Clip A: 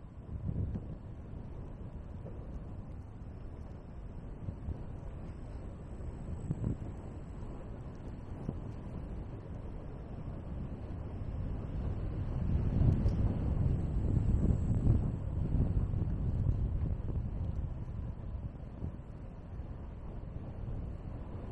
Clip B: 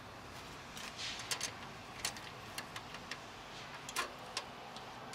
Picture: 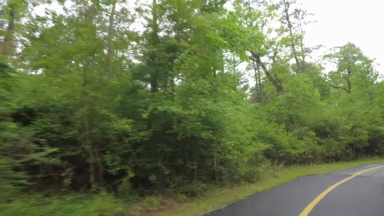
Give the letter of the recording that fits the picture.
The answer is A